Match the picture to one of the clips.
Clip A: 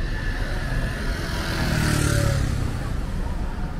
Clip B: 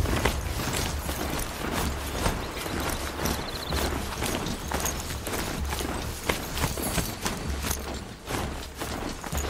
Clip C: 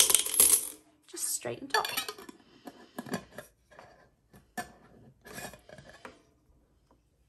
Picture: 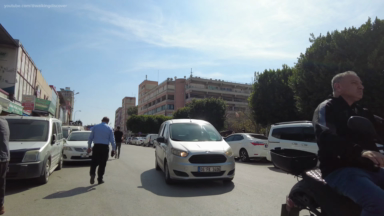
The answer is A